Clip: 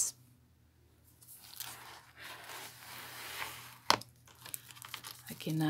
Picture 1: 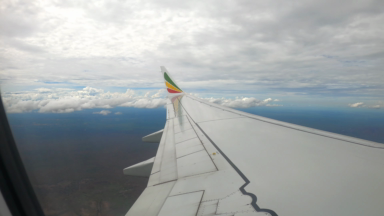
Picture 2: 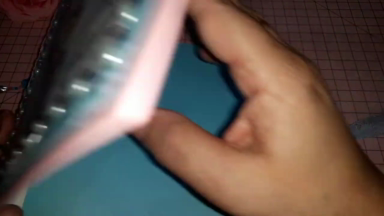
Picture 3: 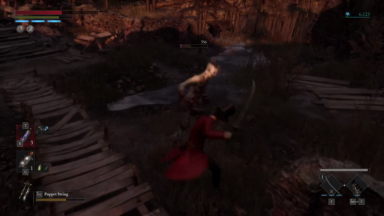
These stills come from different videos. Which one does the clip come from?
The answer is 2